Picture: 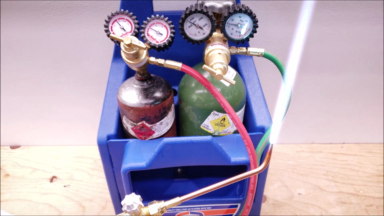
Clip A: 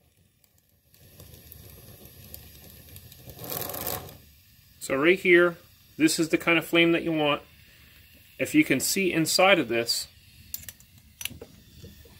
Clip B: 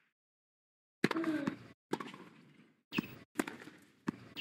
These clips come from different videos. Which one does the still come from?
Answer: A